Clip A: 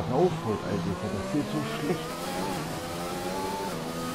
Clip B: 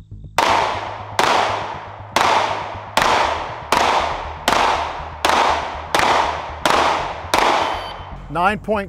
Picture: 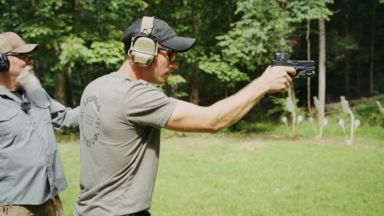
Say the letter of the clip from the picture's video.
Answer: B